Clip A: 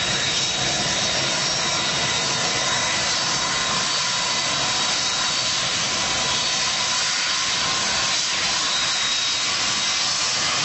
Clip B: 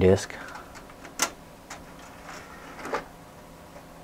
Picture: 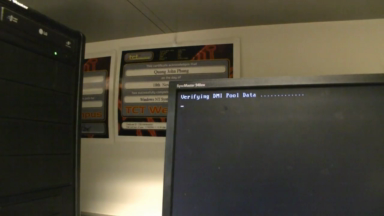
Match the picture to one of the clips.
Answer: B